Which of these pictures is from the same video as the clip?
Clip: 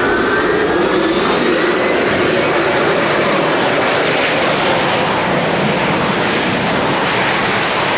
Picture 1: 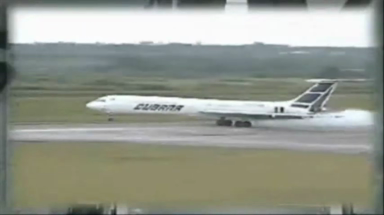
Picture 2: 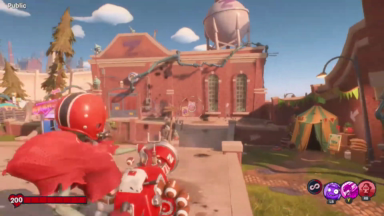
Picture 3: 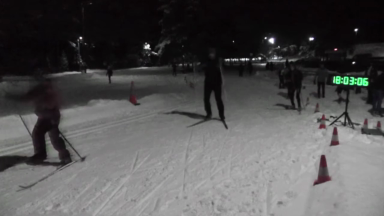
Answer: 1